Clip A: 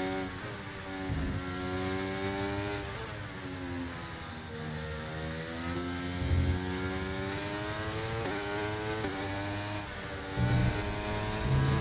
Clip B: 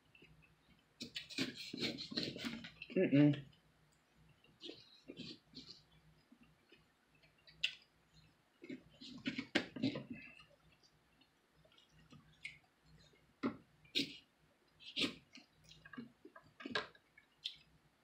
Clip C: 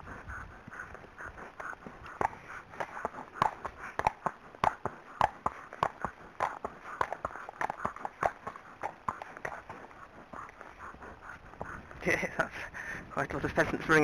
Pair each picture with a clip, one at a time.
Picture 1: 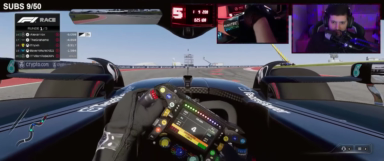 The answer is A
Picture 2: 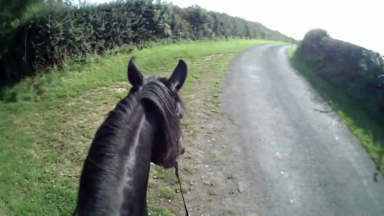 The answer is C